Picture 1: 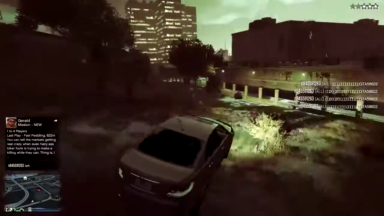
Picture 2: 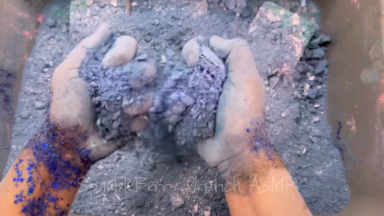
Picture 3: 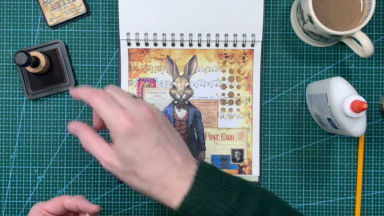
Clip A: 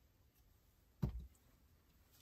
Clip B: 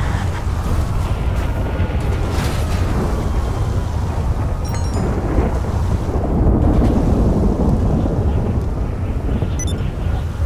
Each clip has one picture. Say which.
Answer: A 3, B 1